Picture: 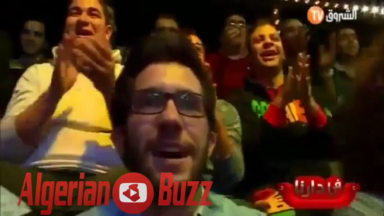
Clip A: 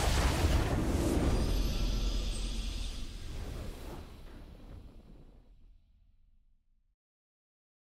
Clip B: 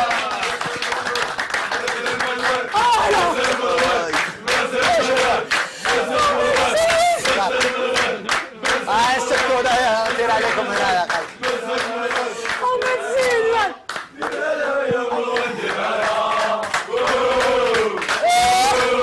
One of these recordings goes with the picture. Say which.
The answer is B